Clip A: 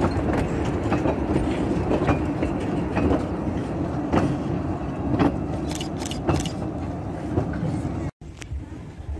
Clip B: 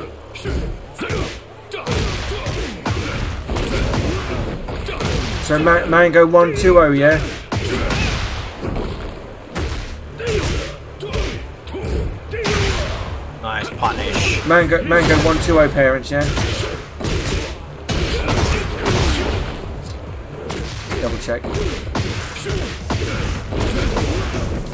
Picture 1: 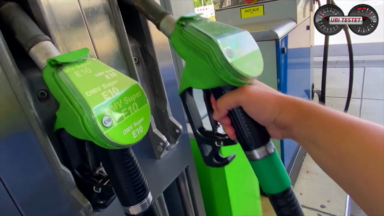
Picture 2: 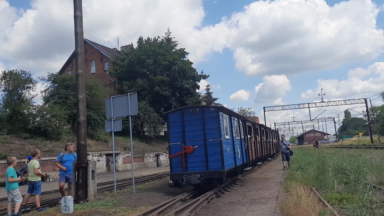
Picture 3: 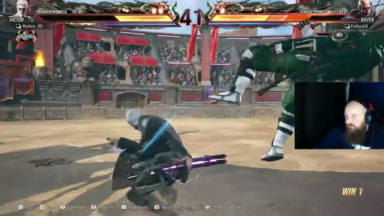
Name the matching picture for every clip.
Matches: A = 2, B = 3